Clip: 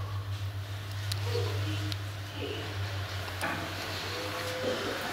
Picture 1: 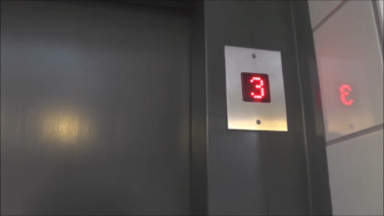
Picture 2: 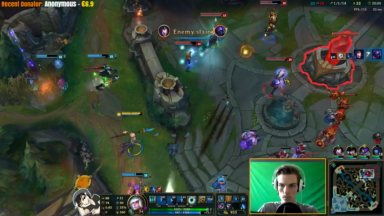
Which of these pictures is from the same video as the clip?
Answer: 1